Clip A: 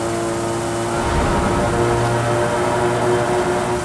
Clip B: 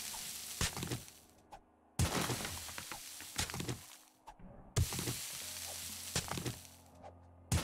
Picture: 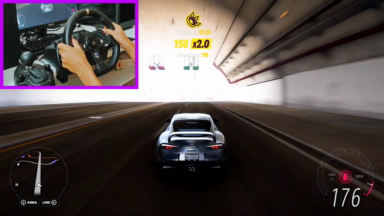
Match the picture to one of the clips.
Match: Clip A